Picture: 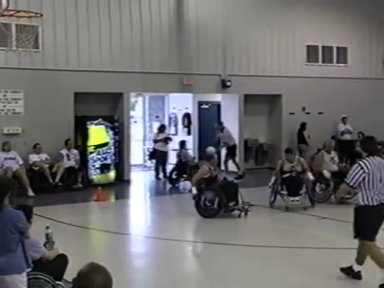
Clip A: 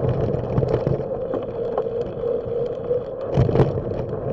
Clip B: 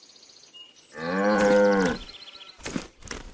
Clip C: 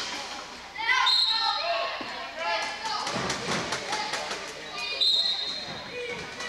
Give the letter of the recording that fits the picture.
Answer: C